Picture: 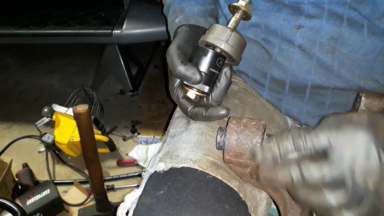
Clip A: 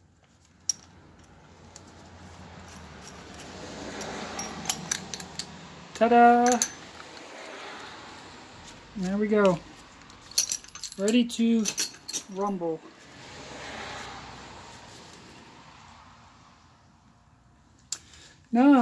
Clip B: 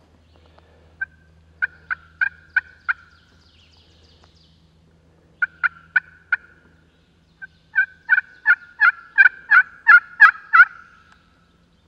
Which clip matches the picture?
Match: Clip A